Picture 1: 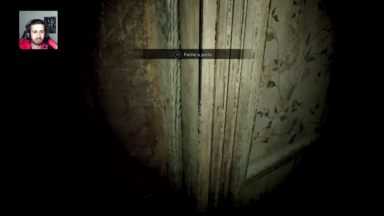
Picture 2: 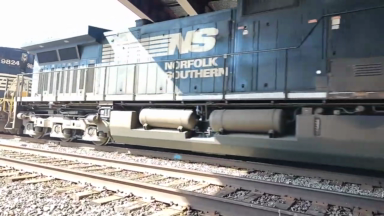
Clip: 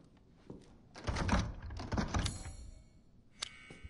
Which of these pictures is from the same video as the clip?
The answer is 1